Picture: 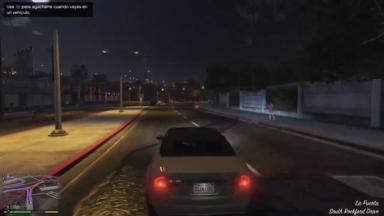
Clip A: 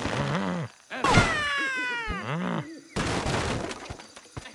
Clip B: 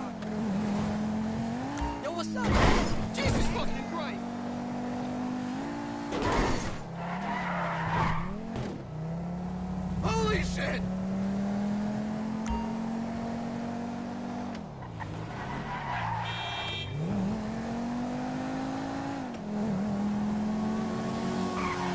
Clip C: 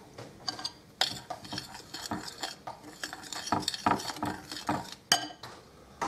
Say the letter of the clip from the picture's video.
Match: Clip B